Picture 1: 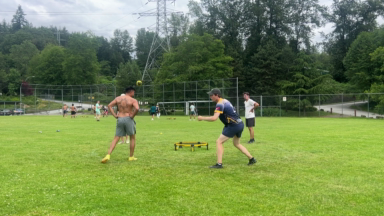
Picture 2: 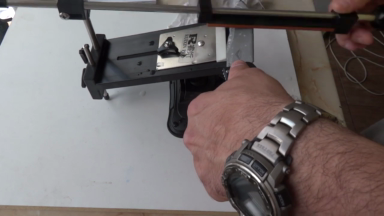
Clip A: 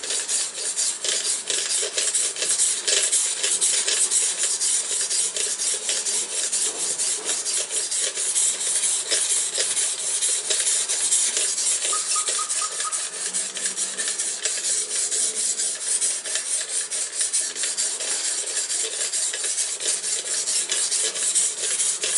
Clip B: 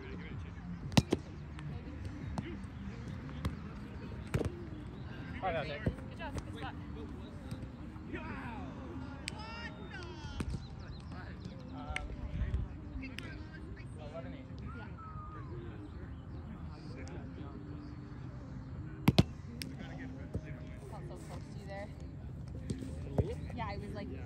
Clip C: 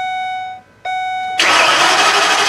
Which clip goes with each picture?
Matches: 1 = B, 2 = A